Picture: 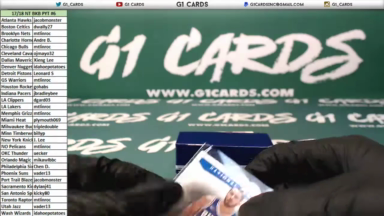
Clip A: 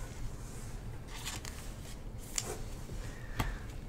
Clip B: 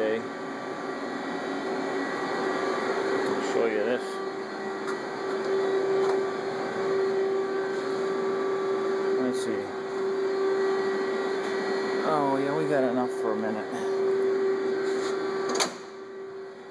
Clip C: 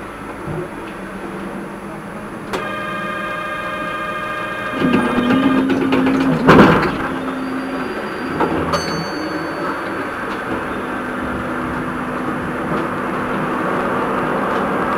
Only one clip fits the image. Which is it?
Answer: A